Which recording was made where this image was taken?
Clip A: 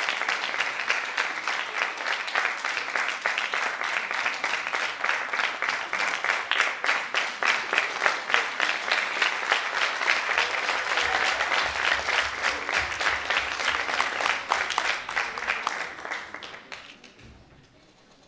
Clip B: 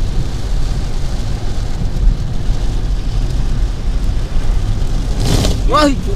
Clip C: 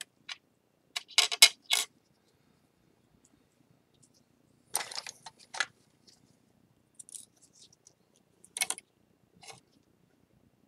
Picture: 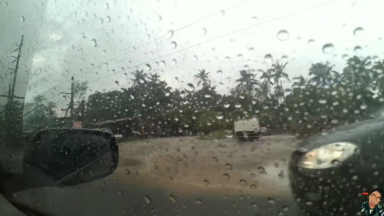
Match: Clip B